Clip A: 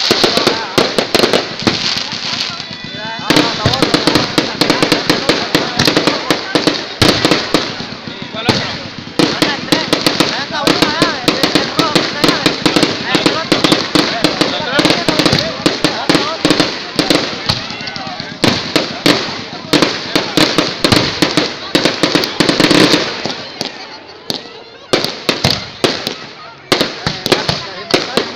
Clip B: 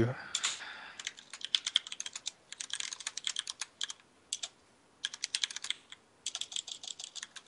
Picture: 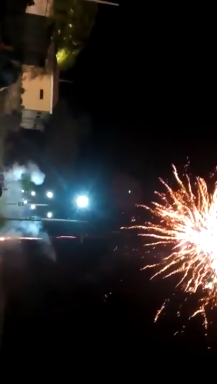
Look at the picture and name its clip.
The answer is A